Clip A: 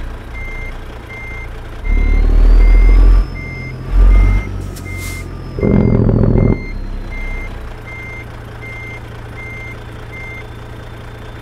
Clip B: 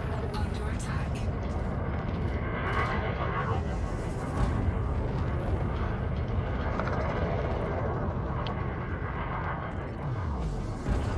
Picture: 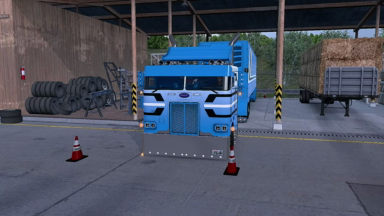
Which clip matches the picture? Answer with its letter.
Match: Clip A